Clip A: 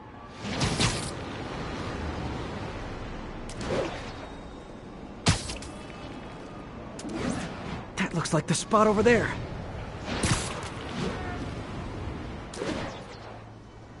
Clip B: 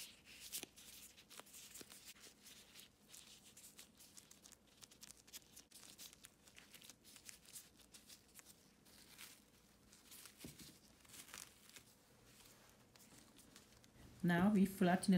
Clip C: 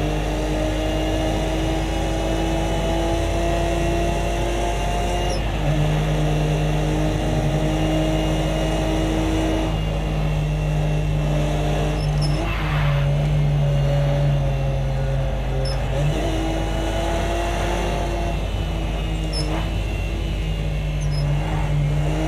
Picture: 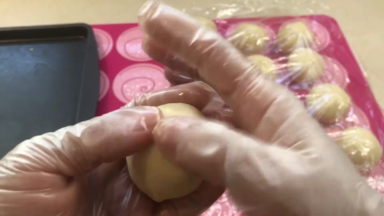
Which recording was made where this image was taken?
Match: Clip B